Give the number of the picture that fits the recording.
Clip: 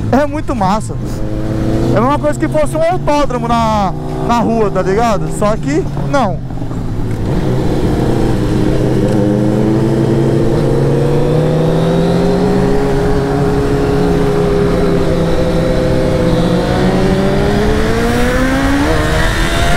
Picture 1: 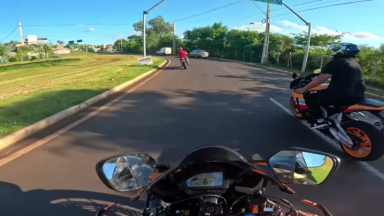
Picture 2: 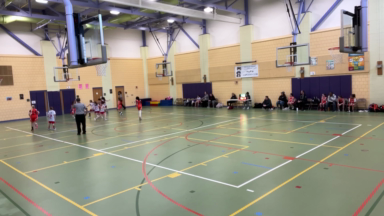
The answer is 1